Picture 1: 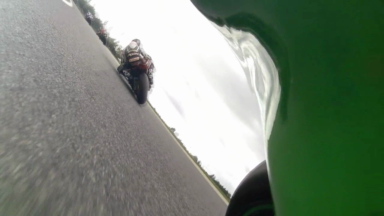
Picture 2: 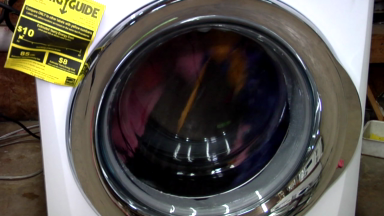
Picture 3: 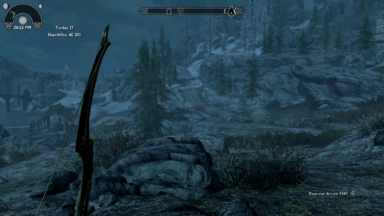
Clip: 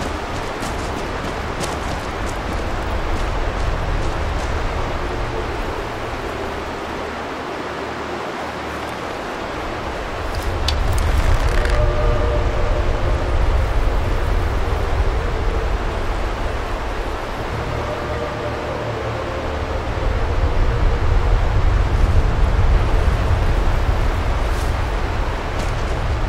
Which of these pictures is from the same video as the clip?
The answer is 3